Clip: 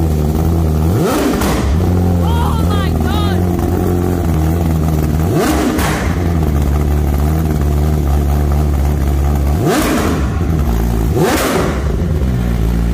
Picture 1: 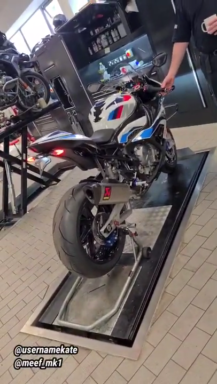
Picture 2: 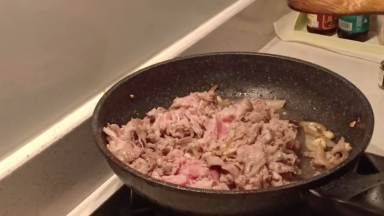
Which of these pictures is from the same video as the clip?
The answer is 1